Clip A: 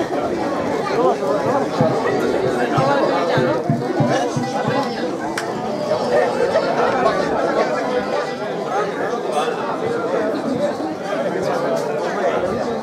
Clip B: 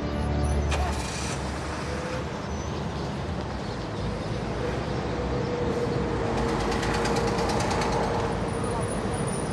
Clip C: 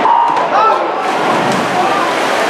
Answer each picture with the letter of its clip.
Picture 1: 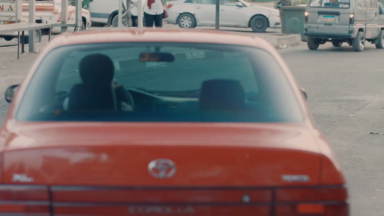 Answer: B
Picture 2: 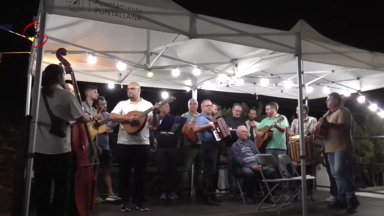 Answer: A